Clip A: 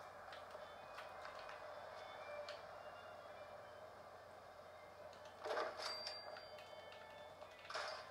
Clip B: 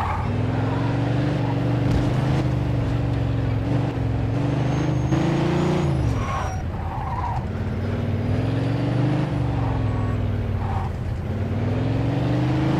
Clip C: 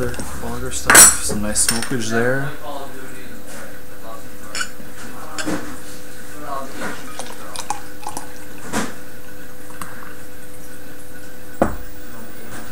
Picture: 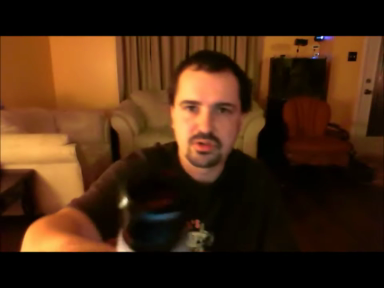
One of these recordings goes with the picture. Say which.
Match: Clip C